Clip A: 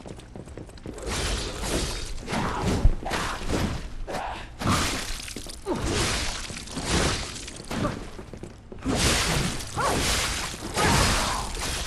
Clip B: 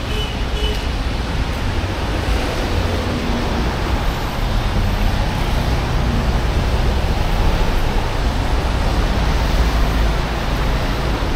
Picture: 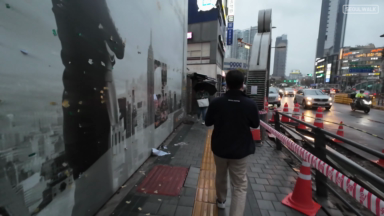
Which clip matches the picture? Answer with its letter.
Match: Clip B